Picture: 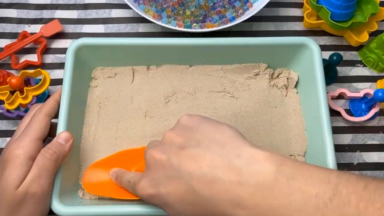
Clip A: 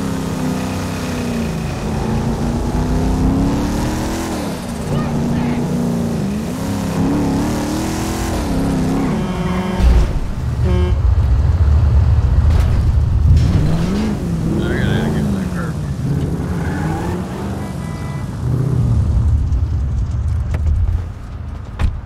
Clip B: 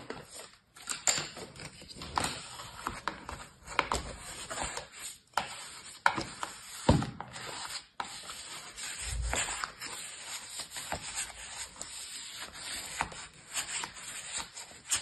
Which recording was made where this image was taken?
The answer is B